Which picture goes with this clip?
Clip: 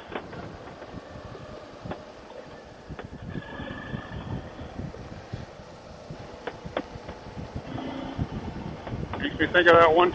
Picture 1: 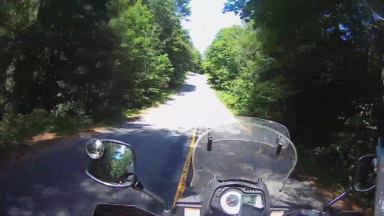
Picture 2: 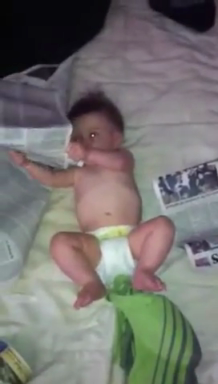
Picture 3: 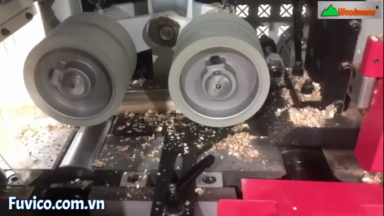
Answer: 1